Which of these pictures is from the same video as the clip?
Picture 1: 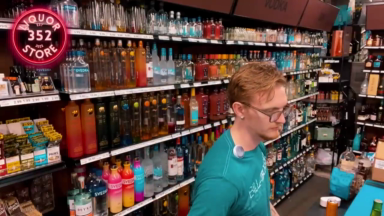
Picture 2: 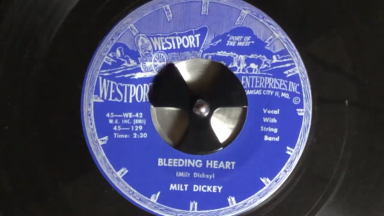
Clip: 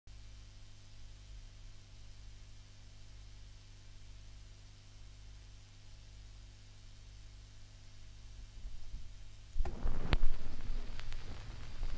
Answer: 2